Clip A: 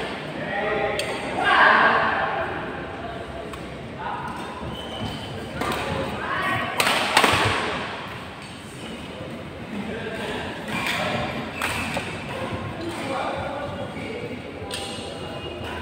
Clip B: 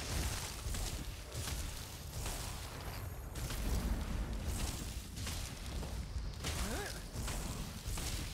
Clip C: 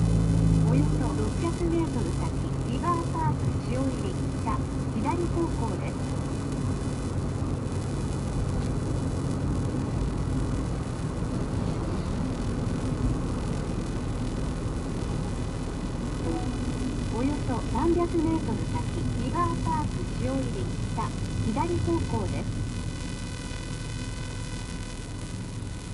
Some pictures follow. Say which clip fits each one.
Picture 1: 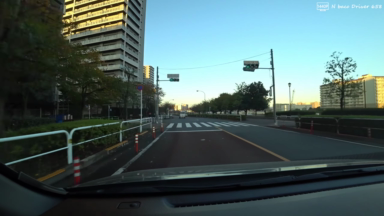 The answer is C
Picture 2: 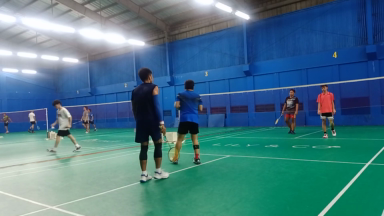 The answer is A